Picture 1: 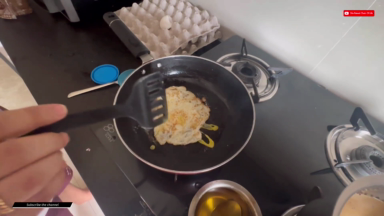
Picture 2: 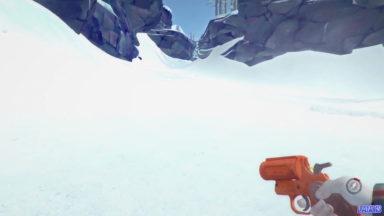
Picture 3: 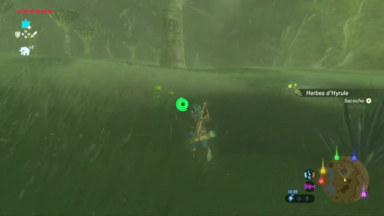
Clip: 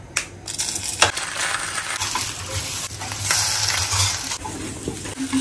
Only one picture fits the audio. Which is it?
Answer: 1